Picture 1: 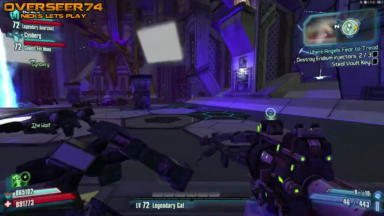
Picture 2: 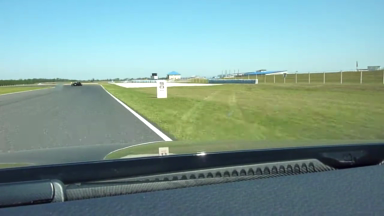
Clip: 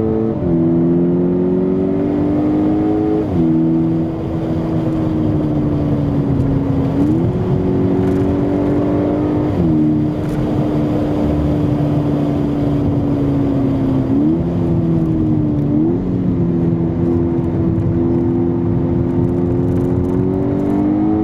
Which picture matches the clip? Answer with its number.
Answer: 2